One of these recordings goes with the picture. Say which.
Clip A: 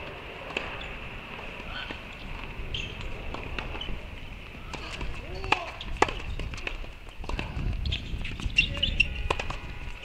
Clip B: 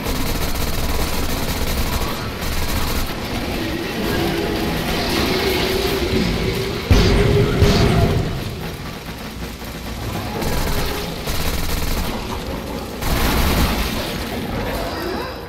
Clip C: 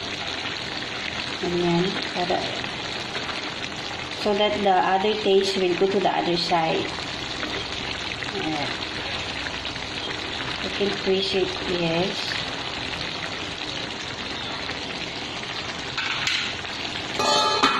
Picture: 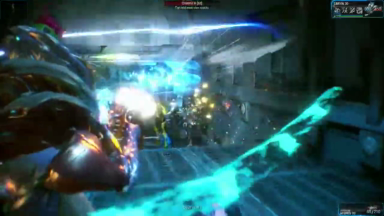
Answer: B